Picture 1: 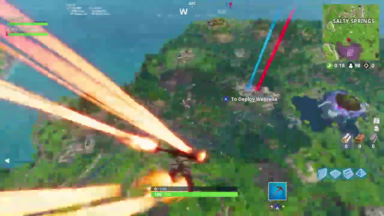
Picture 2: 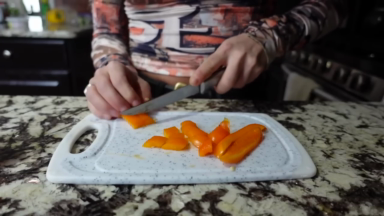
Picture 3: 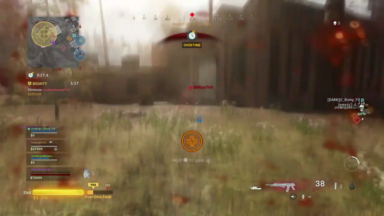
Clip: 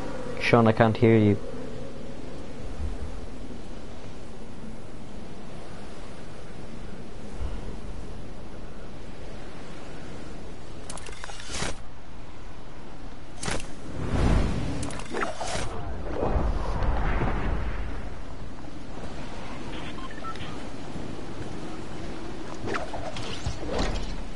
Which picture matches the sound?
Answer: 1